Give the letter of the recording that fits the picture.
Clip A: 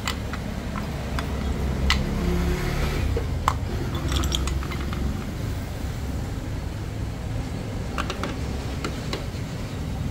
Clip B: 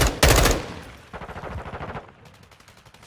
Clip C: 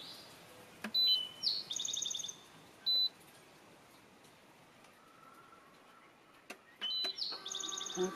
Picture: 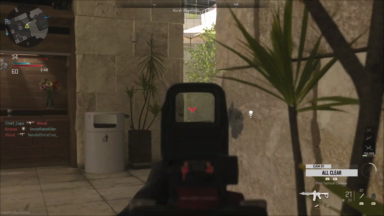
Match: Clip B